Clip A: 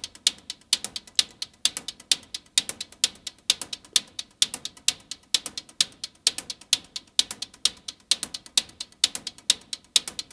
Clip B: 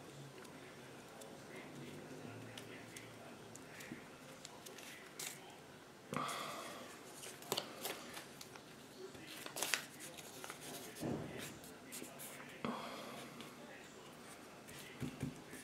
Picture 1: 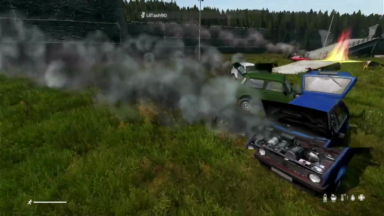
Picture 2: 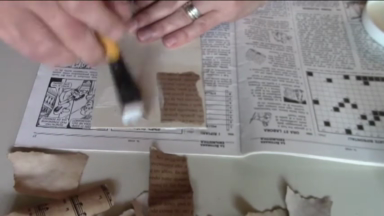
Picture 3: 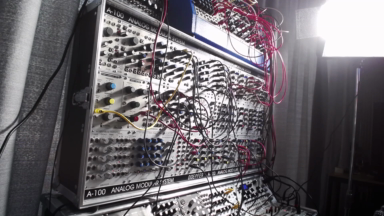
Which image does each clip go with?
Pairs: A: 3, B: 2